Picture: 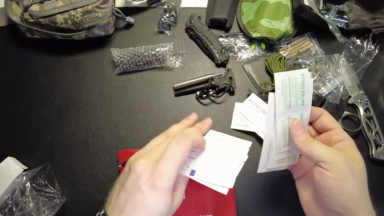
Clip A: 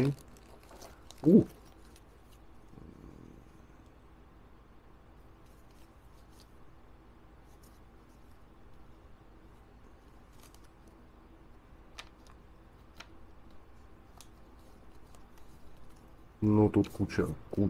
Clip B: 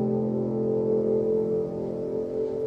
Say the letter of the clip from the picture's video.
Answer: A